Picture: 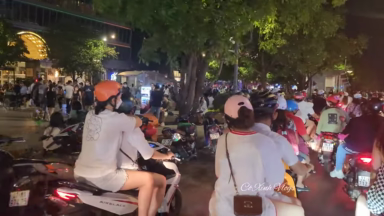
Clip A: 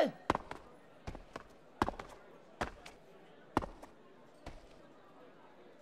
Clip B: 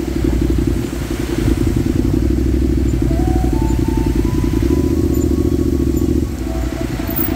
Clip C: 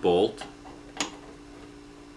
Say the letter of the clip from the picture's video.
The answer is B